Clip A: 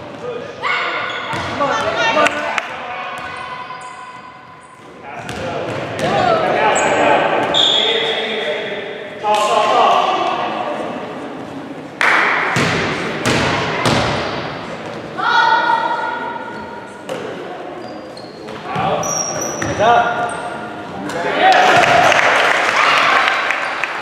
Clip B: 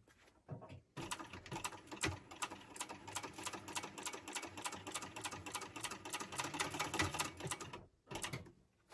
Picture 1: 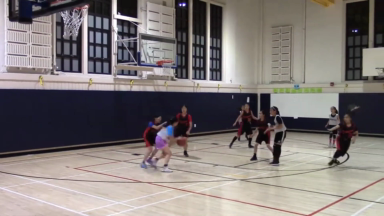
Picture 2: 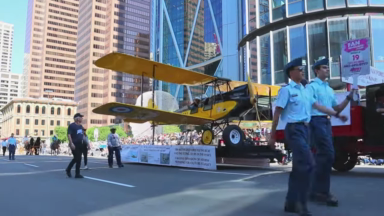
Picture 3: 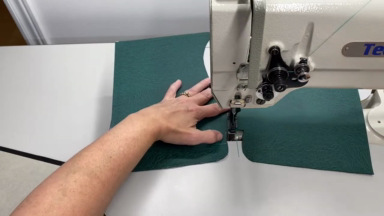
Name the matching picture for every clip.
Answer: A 1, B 3